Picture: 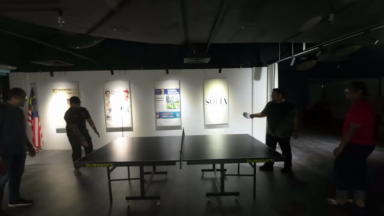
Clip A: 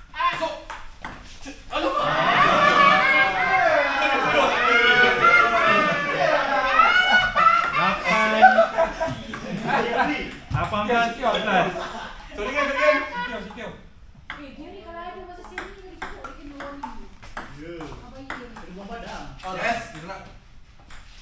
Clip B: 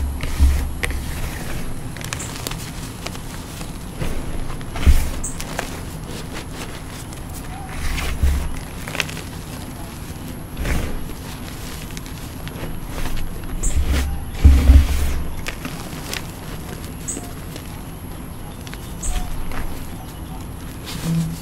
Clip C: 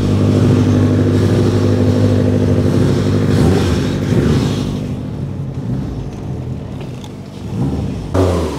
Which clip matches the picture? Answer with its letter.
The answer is A